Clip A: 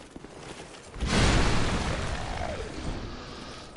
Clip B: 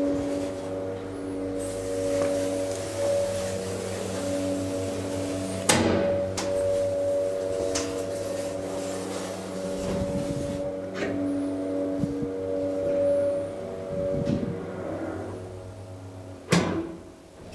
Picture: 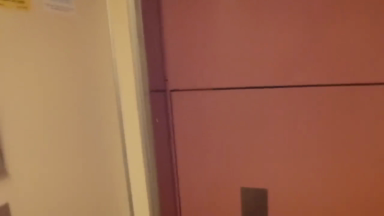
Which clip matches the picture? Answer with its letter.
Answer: B